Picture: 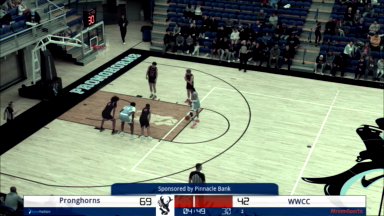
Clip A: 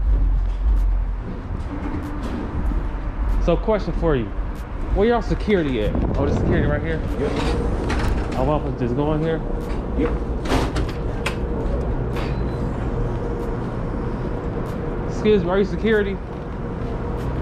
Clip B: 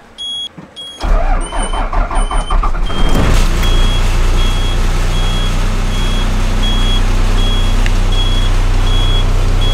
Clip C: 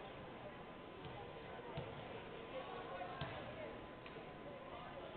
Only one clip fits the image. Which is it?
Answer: C